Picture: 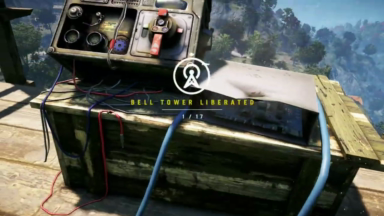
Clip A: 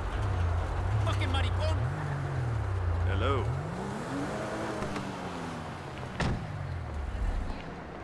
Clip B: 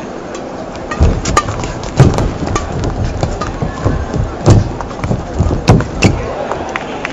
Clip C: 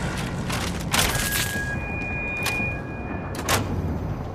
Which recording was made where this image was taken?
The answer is C